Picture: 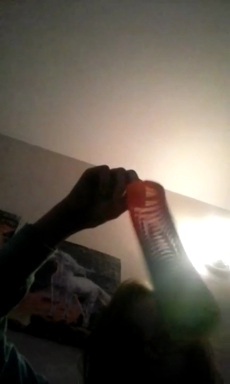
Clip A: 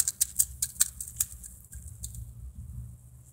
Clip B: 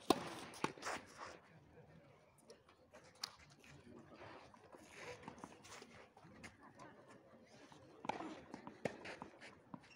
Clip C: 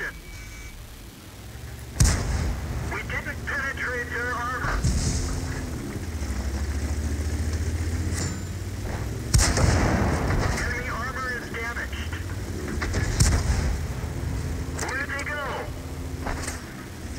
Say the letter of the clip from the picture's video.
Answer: A